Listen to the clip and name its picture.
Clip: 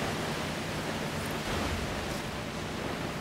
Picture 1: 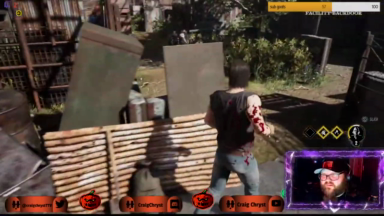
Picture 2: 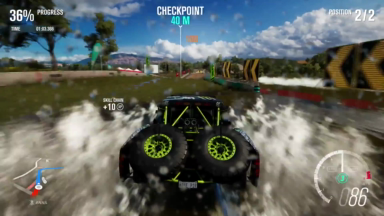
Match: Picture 2